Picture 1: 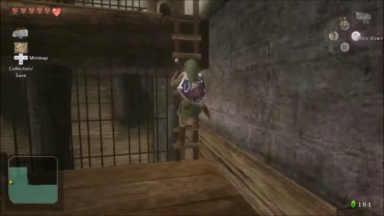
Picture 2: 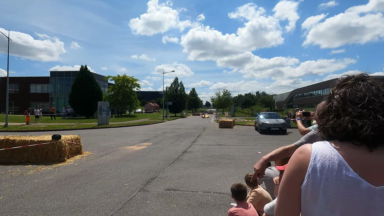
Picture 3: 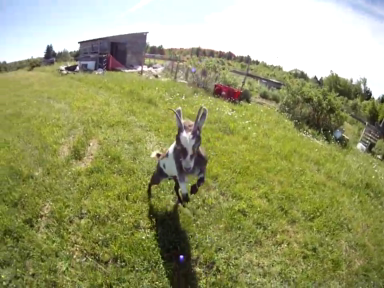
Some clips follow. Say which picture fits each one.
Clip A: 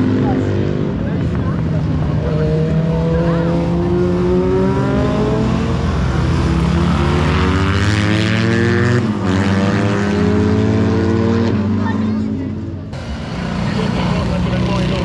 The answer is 2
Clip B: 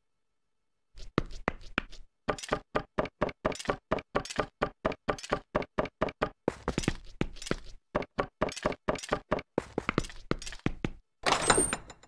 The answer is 1